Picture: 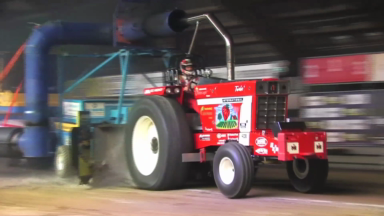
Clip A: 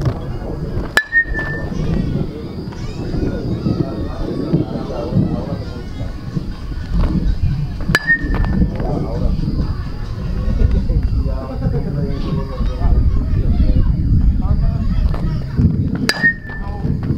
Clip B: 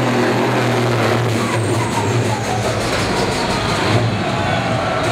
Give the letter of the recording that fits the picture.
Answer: B